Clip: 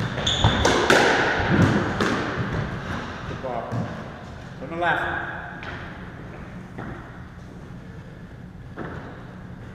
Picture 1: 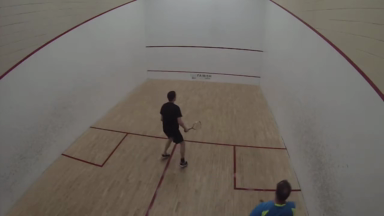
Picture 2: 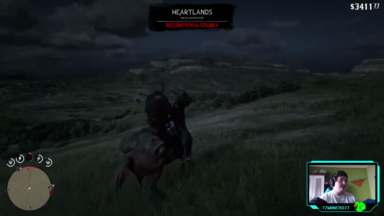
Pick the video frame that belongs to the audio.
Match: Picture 1